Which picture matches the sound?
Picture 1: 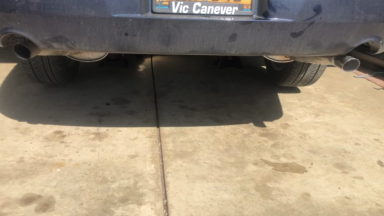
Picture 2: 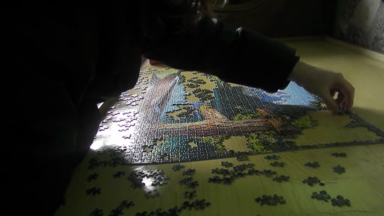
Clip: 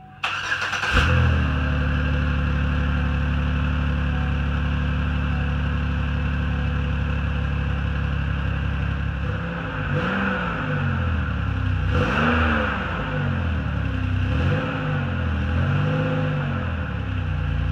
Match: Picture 1